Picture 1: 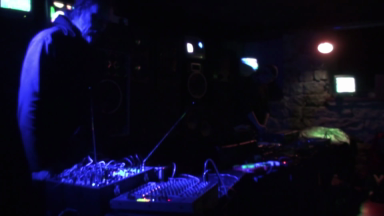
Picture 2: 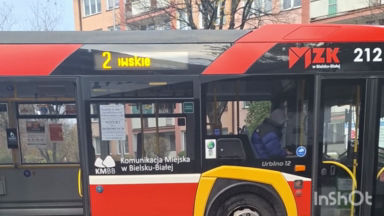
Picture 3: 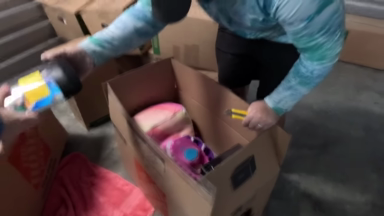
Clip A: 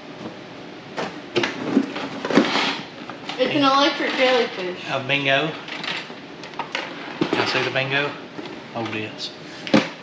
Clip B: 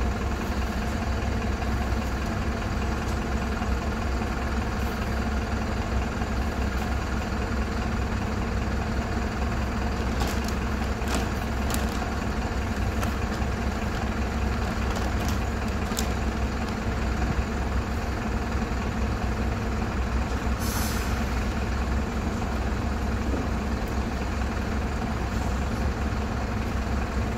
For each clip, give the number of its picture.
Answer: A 3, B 2